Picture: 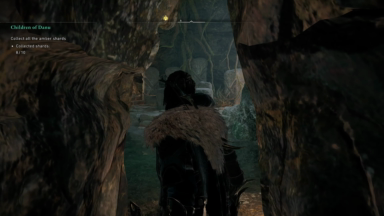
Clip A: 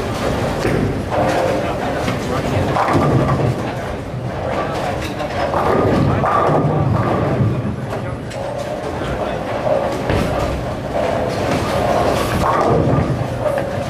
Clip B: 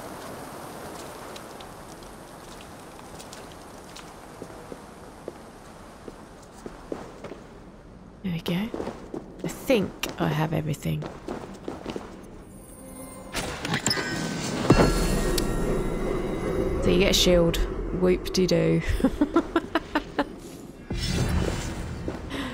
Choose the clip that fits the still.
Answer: B